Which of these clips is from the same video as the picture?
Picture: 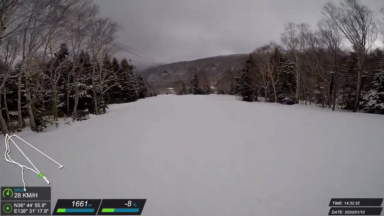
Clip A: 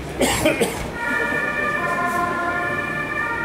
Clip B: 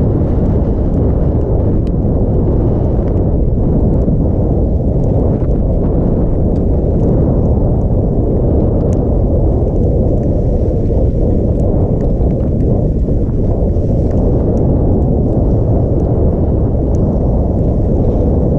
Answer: B